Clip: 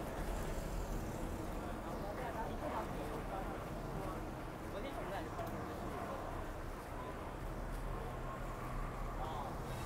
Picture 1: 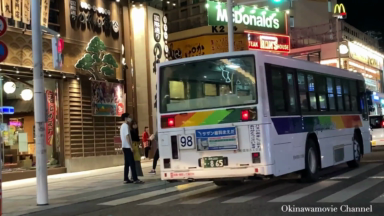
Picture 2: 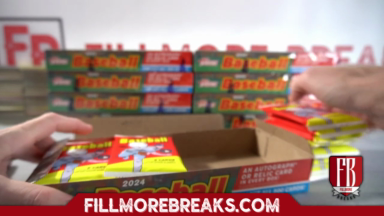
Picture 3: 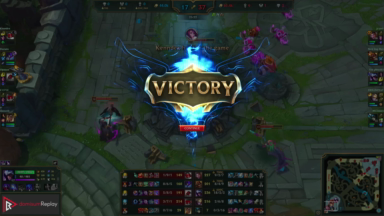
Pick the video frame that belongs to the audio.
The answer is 1